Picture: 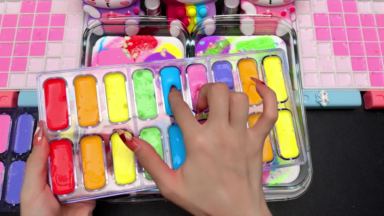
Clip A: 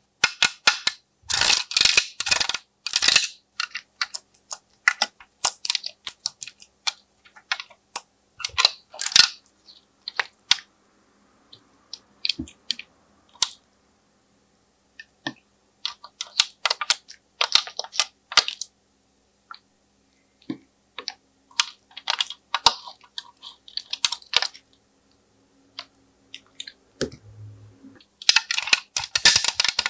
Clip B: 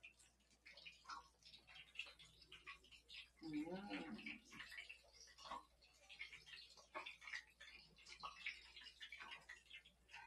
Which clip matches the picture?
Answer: A